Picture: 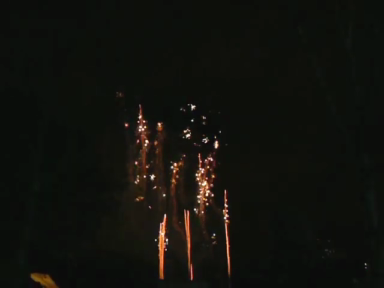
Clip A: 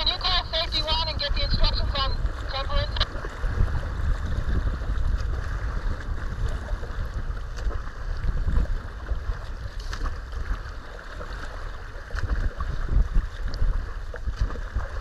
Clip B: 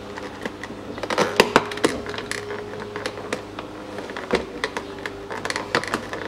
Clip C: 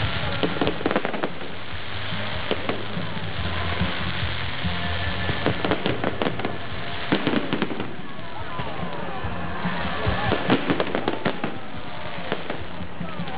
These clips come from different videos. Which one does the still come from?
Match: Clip C